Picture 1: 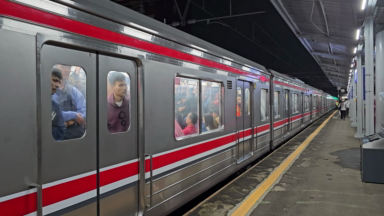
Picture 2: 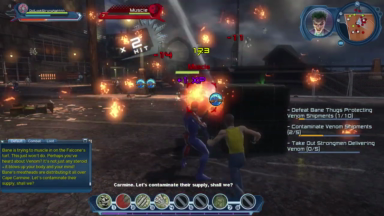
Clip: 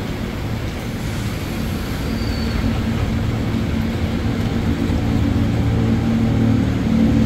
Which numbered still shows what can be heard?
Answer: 1